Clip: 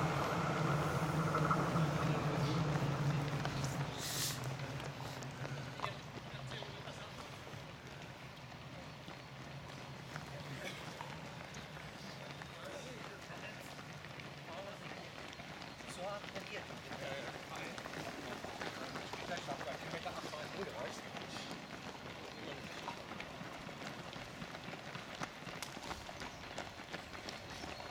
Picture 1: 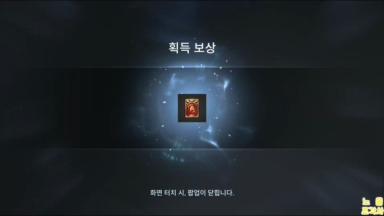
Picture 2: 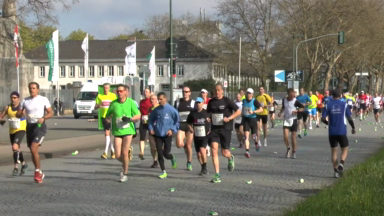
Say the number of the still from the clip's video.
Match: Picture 2